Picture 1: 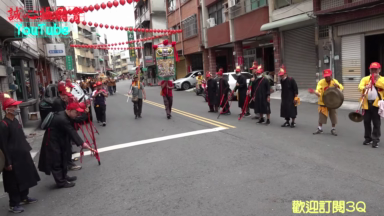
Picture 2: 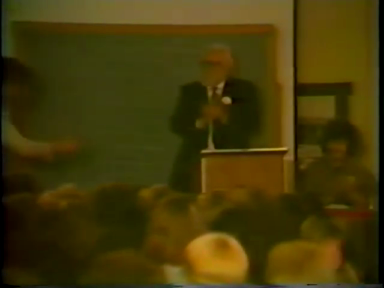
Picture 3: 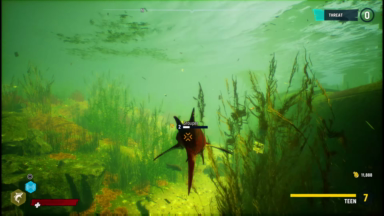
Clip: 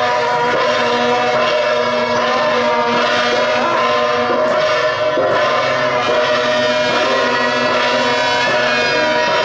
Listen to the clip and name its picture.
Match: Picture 1